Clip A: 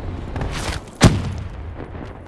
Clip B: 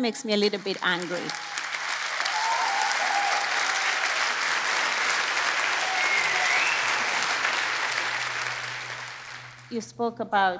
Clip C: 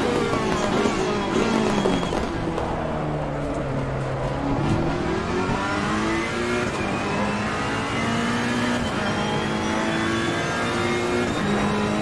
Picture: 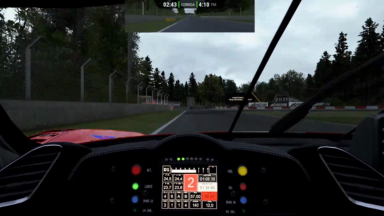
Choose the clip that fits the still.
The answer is C